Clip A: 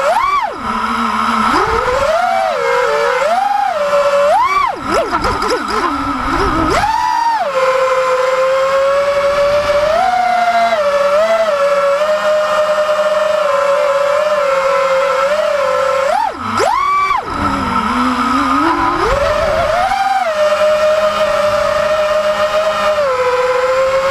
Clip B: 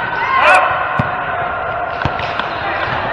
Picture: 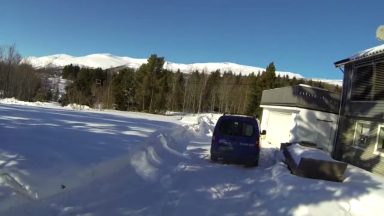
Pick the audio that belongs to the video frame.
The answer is A